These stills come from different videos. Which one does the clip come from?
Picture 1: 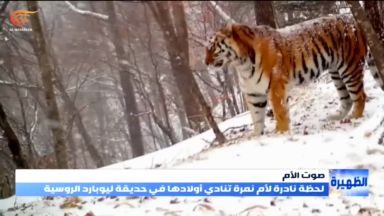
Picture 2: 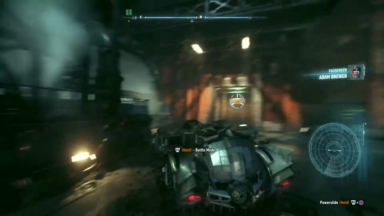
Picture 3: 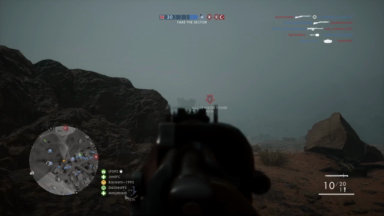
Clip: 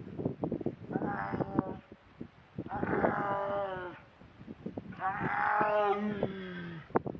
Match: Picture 1